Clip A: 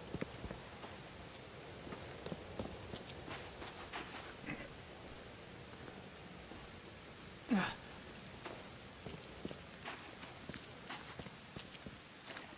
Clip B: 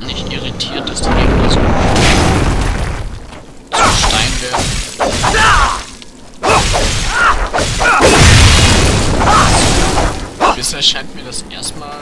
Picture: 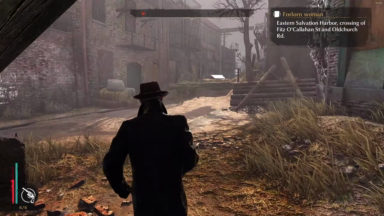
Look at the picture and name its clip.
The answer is A